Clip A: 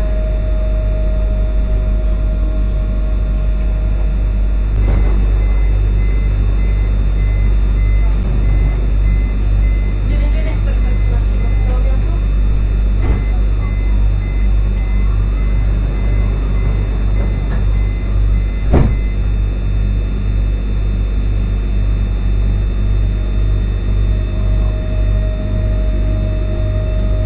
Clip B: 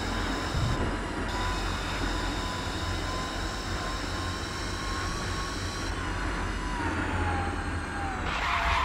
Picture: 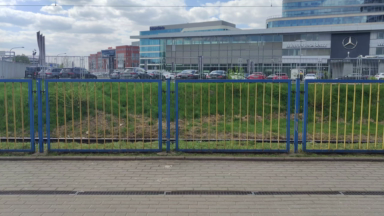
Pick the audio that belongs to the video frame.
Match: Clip A